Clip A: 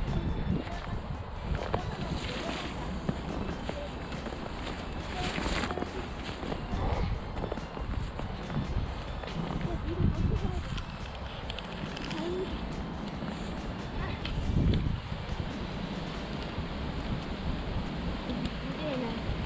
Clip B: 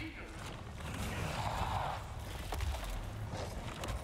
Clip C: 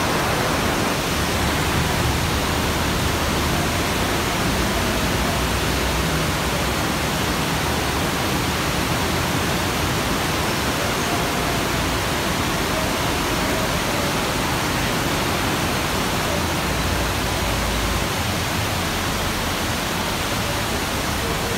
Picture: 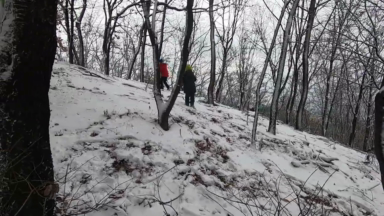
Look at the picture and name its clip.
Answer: A